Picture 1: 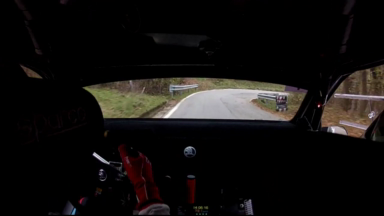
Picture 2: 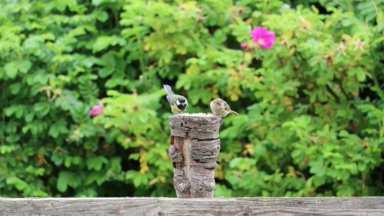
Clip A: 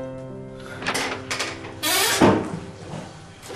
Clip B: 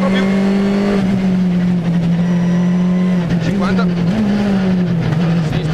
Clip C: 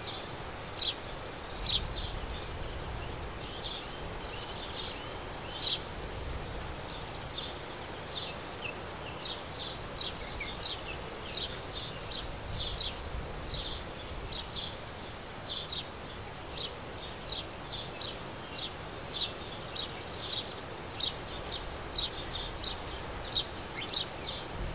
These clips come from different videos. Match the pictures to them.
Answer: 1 B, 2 C